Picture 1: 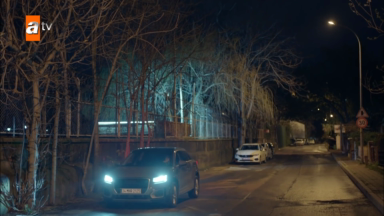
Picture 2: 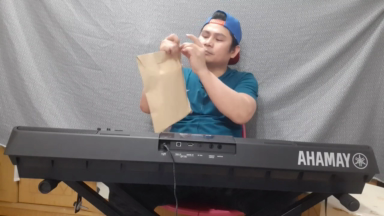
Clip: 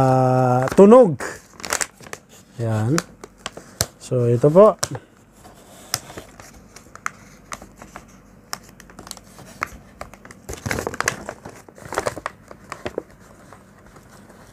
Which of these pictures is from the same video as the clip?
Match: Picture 2